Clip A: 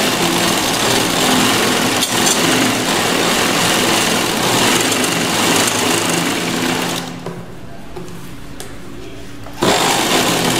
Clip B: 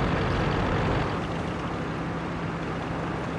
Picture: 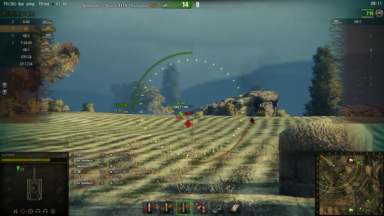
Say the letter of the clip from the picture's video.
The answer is B